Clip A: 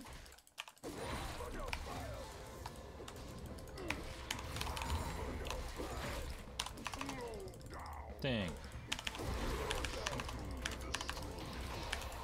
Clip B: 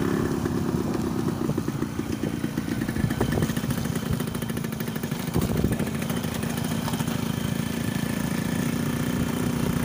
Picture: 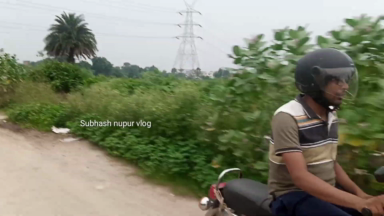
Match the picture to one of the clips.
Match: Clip B